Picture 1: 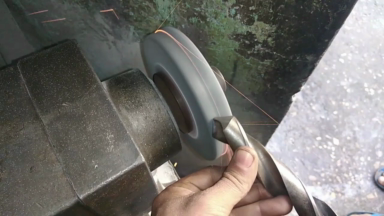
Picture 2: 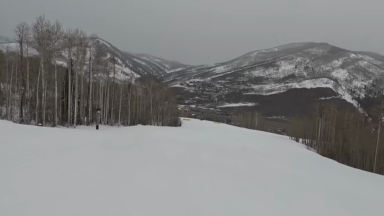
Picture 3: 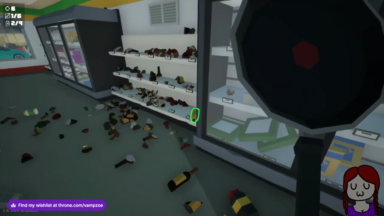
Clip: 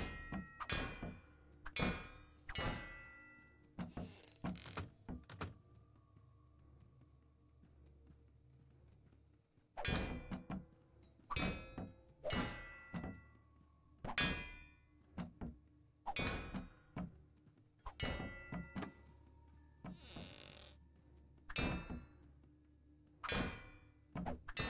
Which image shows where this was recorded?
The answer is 3